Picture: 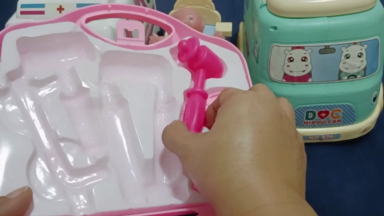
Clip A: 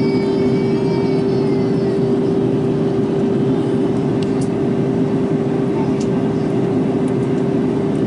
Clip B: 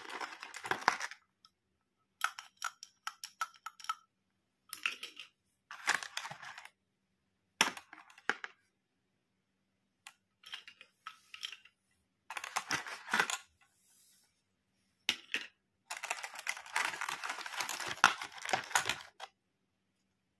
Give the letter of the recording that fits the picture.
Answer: B